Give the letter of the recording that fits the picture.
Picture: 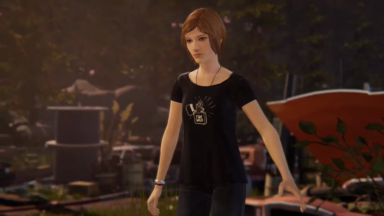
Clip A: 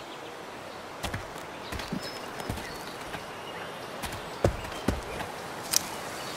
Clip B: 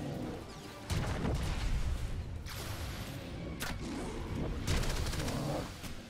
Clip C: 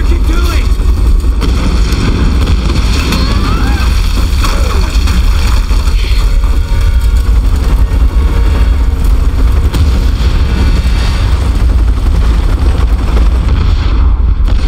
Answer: A